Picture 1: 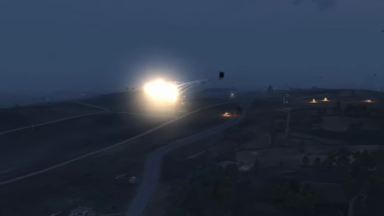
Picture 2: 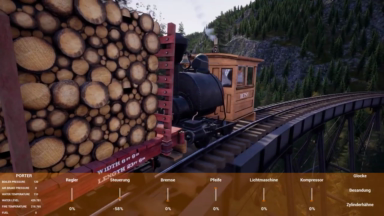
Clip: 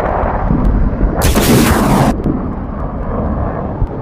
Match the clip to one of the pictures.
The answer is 1